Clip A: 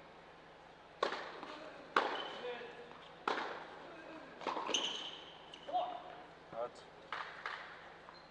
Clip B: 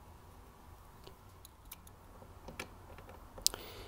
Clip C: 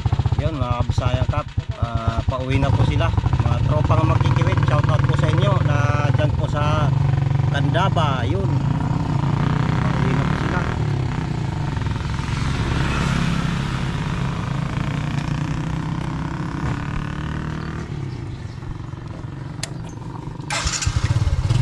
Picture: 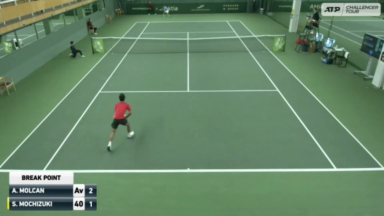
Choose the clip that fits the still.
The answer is A